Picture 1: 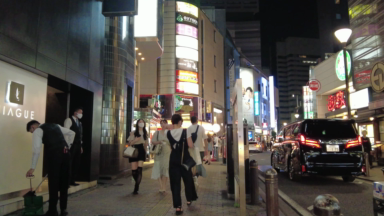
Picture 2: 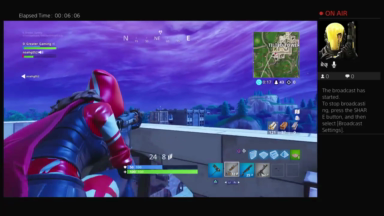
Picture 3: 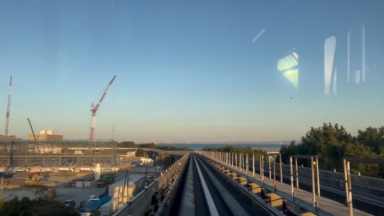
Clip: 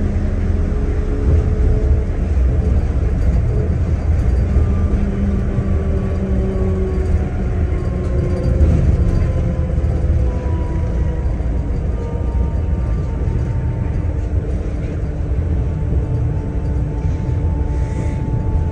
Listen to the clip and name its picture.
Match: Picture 3